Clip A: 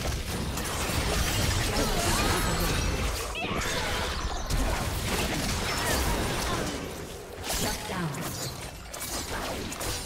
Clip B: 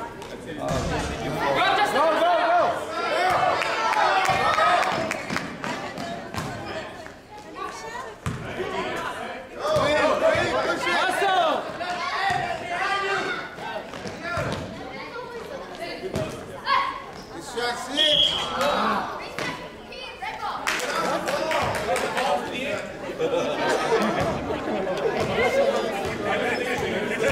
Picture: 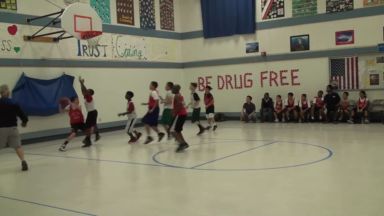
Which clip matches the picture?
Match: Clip B